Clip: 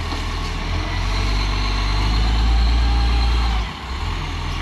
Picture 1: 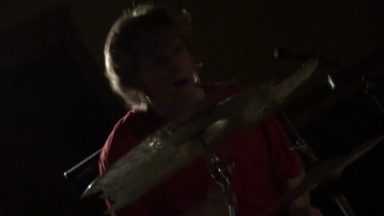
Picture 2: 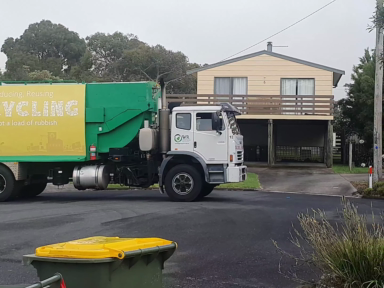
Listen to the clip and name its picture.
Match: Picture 2